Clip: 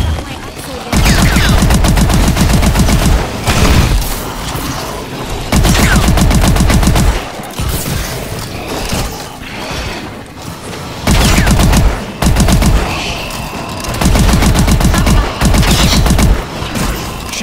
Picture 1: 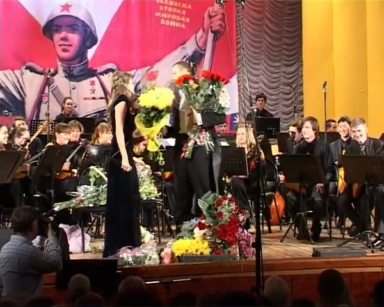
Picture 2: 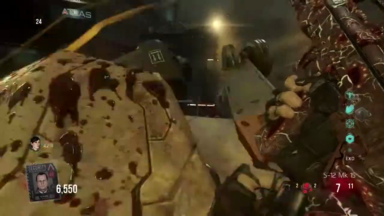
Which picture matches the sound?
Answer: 2